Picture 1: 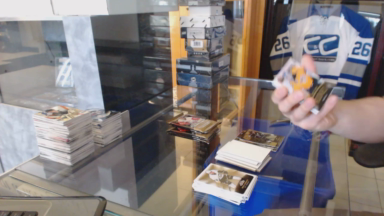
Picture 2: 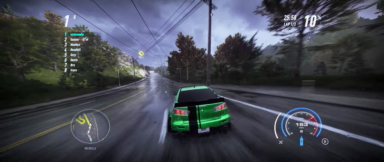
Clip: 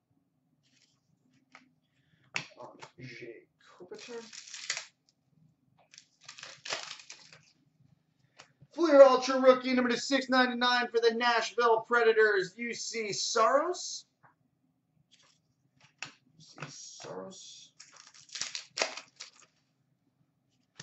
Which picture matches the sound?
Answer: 1